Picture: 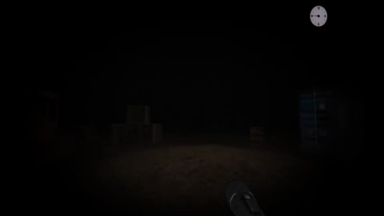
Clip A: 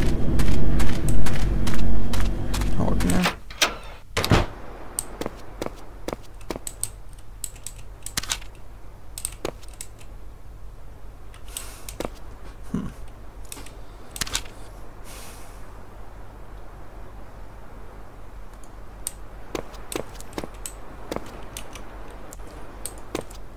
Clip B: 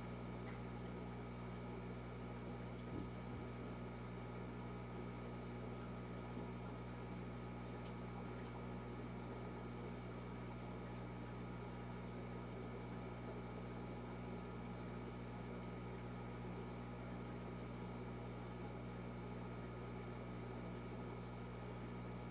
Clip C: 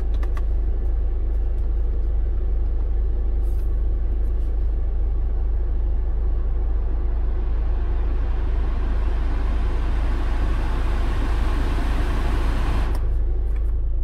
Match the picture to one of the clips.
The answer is A